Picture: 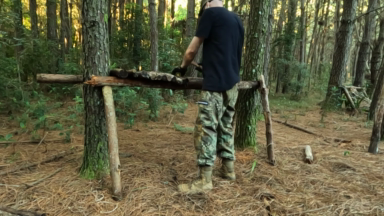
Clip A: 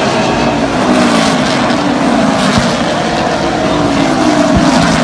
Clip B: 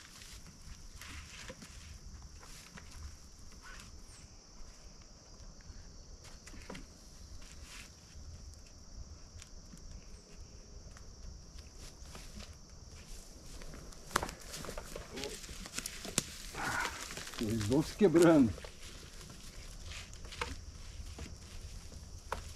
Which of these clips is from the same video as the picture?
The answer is B